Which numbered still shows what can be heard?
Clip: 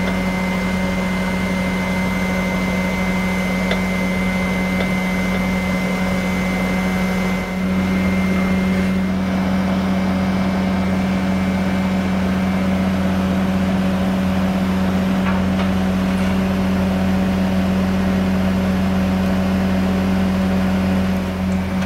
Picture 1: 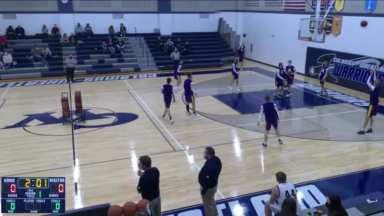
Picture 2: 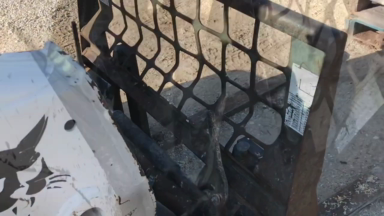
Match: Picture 2